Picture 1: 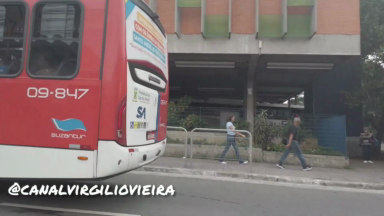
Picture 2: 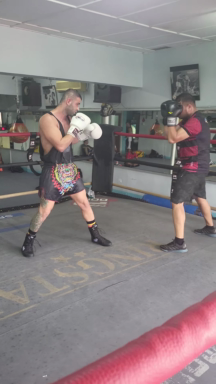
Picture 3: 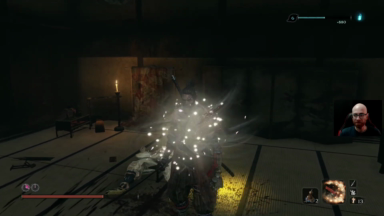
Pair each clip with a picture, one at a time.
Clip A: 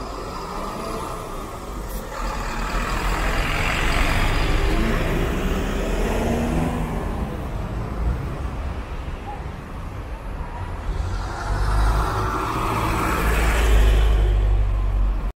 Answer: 1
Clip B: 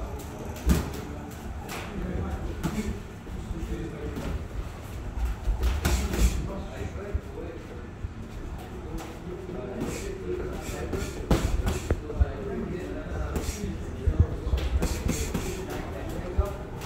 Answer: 2